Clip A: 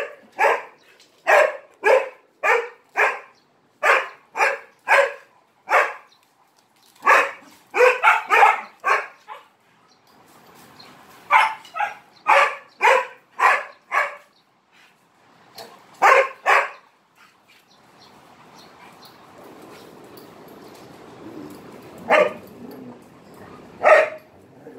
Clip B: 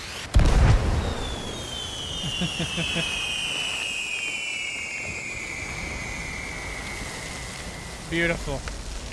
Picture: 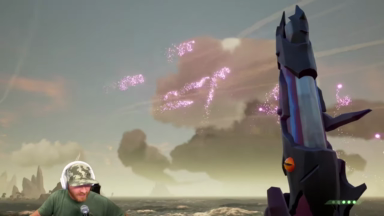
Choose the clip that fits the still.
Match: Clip B